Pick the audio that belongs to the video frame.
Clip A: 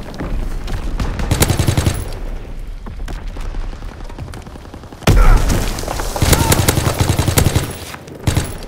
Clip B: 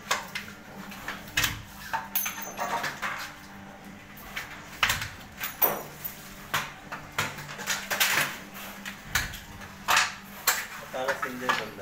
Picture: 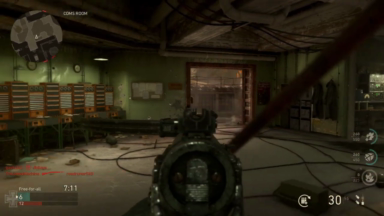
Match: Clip A